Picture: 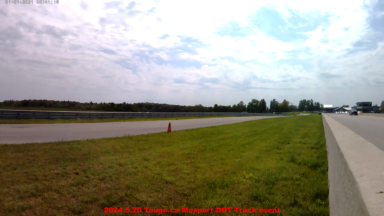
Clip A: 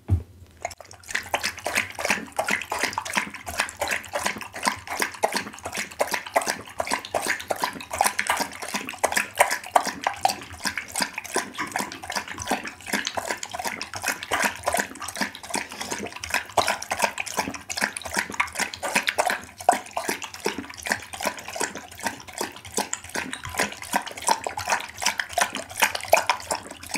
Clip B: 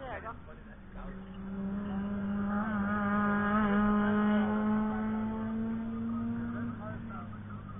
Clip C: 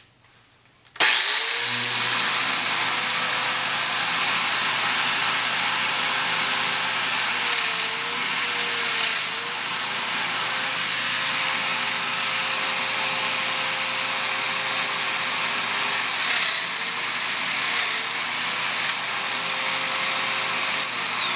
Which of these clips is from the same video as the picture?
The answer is B